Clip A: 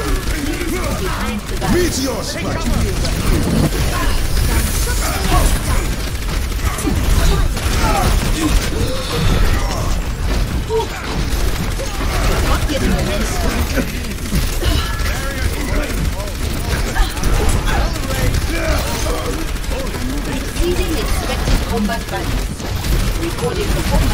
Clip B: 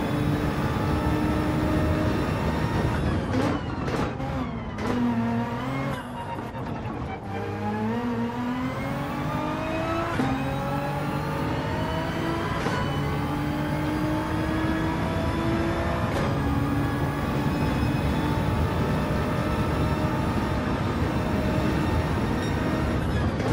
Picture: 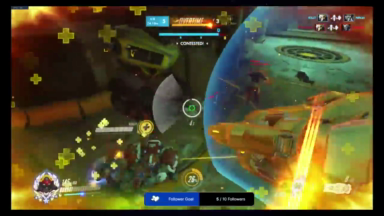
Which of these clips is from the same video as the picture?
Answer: A